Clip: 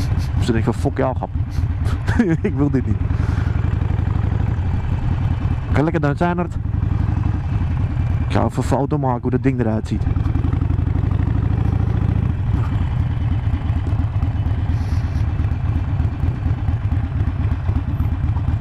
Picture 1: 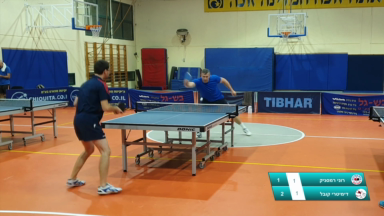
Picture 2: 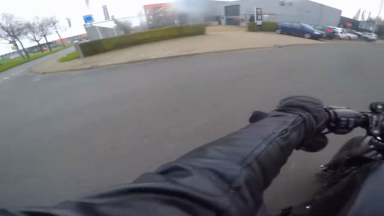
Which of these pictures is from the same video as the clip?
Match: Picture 2